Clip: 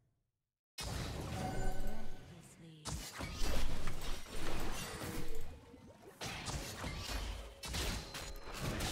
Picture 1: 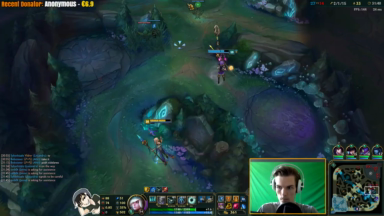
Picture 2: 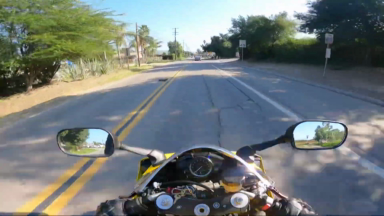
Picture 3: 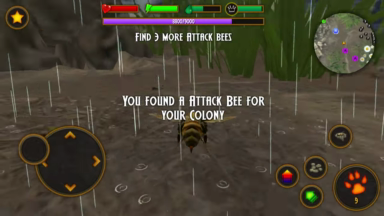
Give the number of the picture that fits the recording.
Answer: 1